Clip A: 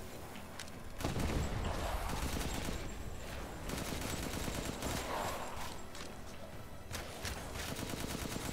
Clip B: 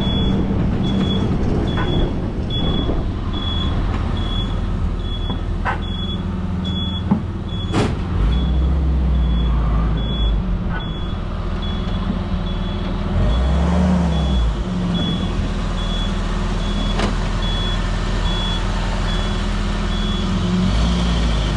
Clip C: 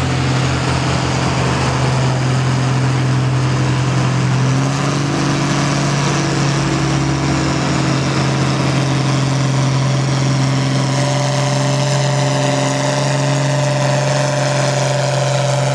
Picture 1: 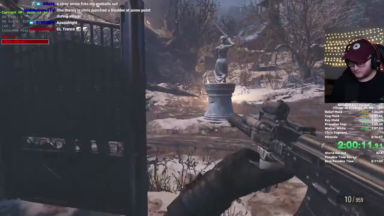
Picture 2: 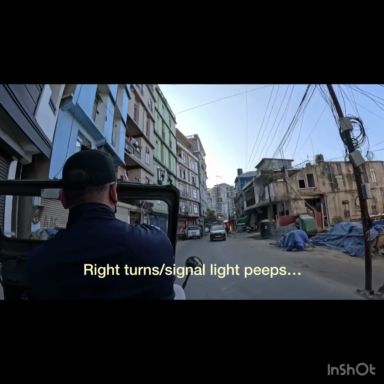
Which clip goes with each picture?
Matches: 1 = A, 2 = B